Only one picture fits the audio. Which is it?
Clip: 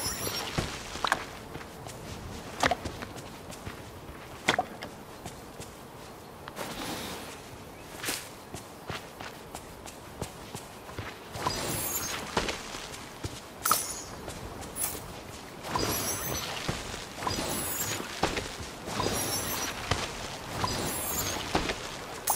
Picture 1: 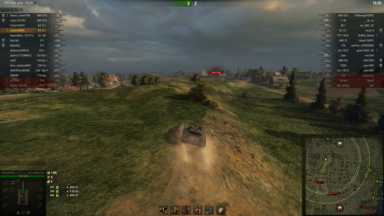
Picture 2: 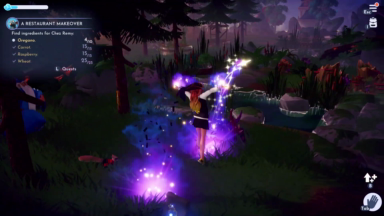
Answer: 2